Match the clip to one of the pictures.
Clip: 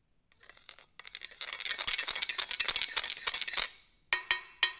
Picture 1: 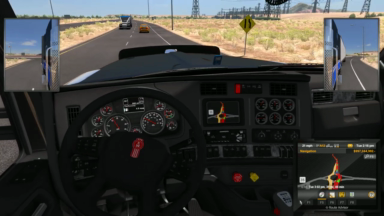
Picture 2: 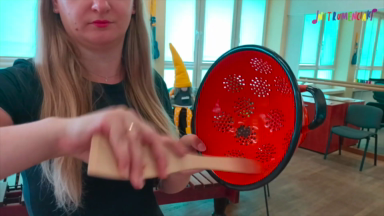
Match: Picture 2